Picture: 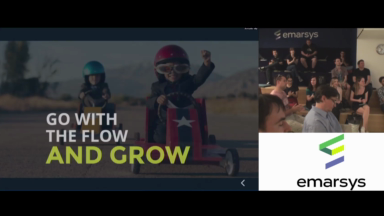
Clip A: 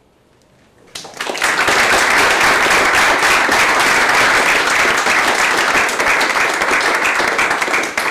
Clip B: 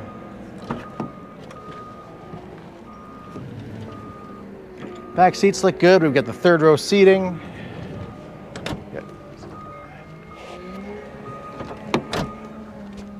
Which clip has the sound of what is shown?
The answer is A